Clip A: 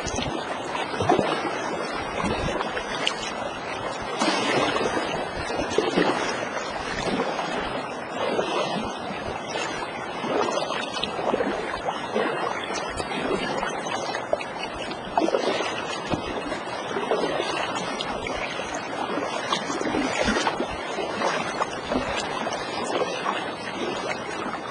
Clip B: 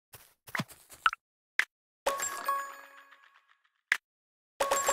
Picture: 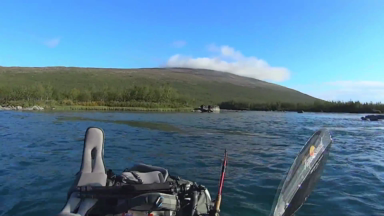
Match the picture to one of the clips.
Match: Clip A